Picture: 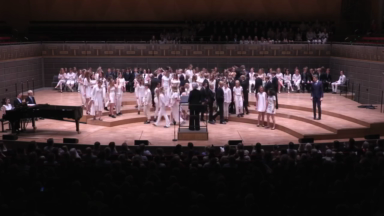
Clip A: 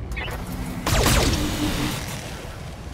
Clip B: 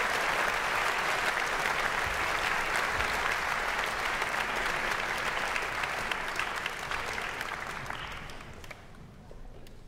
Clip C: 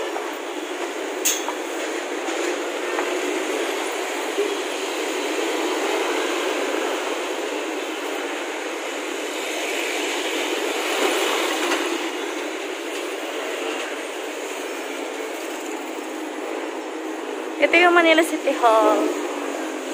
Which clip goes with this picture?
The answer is B